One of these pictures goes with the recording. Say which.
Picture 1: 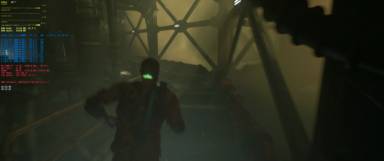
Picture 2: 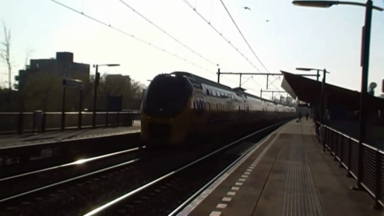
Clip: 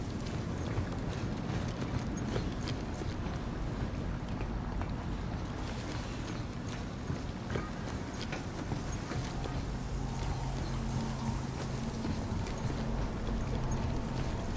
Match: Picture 1